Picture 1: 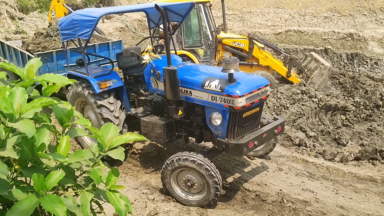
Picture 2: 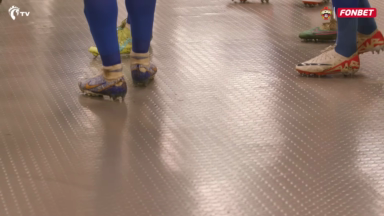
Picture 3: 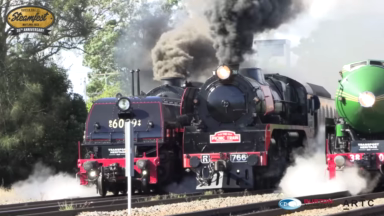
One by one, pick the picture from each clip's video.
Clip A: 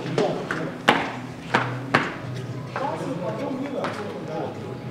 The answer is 2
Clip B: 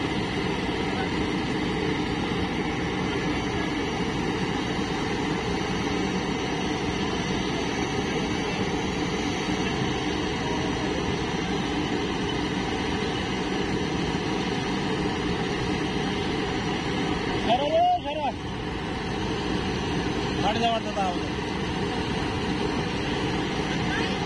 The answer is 1